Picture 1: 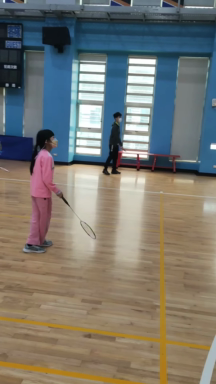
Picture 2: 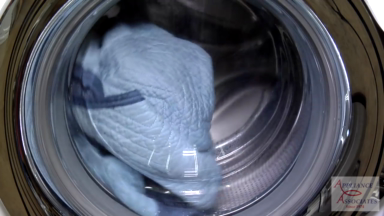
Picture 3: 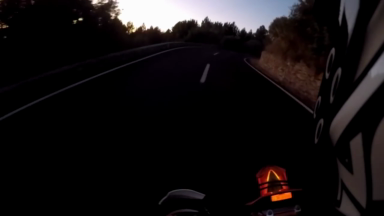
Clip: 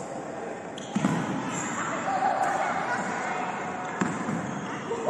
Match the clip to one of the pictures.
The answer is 1